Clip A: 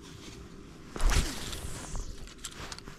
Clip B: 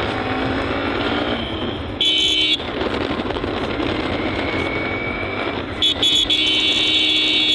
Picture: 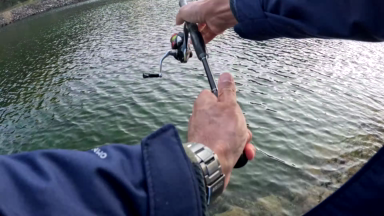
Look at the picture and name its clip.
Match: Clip A